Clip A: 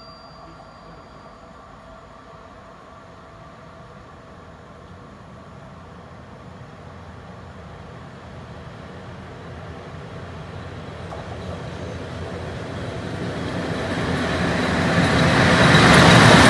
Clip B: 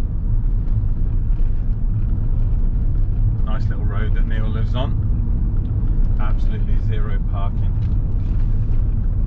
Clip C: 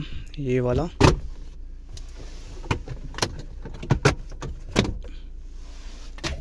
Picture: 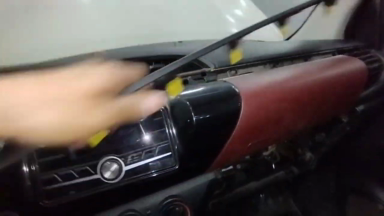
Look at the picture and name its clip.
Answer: C